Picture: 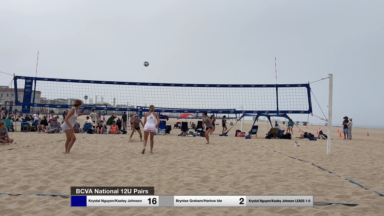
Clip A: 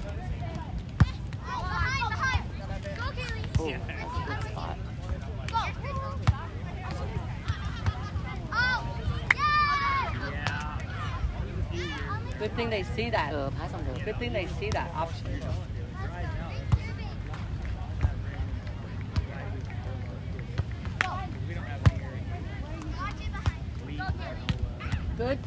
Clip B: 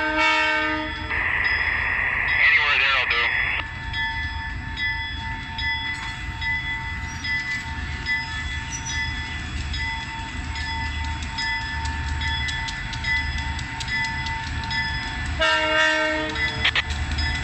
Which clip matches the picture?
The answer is A